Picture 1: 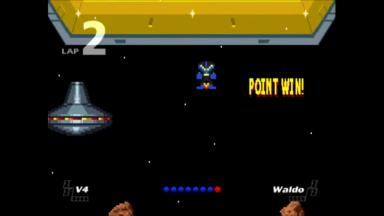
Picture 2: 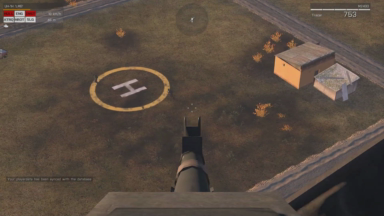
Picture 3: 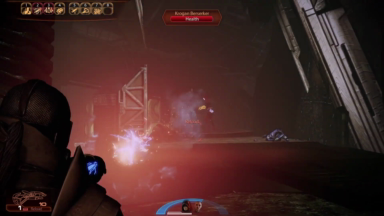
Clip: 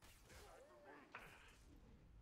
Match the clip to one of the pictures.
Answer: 3